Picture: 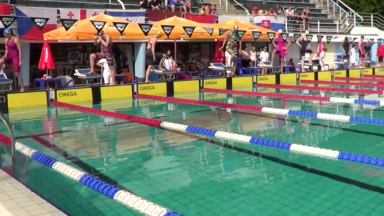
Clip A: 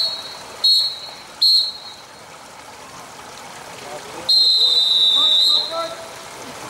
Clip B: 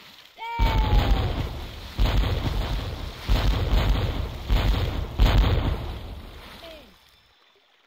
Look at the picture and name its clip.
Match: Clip A